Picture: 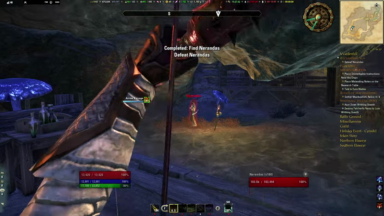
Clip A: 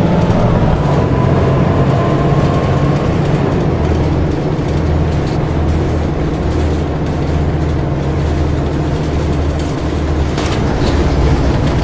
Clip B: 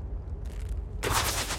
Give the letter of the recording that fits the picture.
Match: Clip B